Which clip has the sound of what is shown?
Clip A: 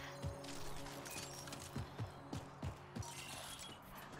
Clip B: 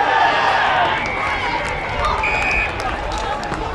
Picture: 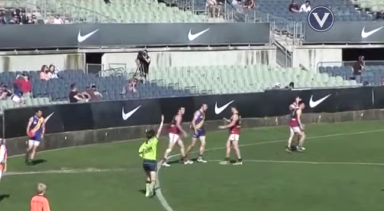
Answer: B